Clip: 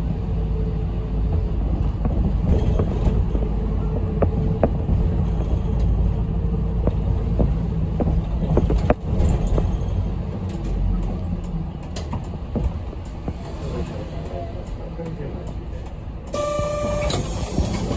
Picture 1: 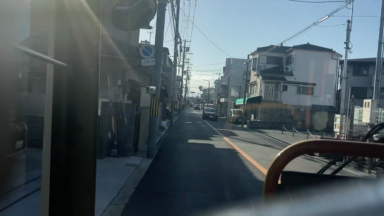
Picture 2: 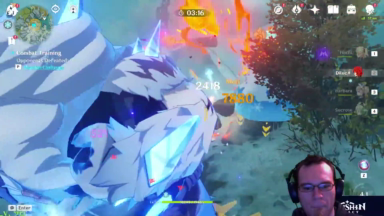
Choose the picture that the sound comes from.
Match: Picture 1